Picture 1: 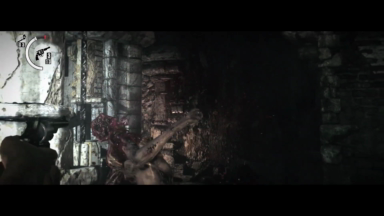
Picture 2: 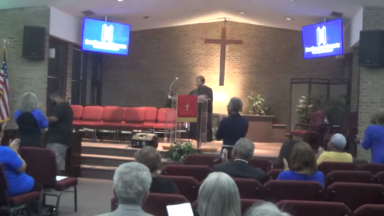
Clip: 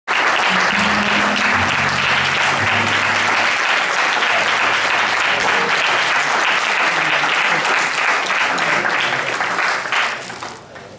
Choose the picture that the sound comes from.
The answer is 2